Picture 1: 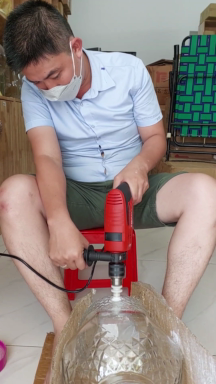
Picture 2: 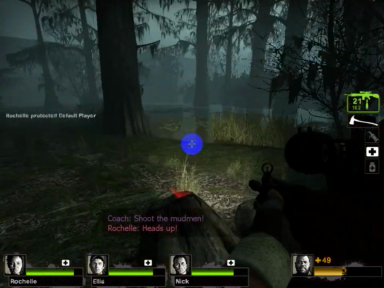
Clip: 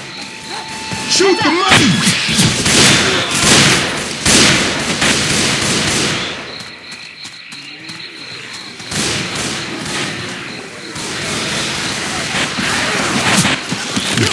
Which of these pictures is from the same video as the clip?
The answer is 2